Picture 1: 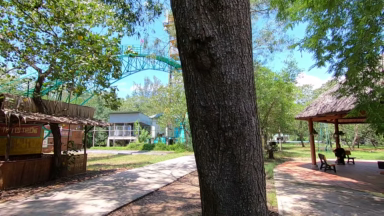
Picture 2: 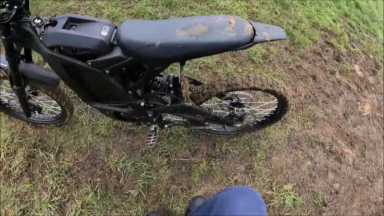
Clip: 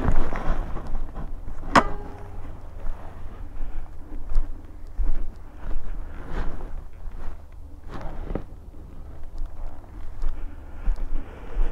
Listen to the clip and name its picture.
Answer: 2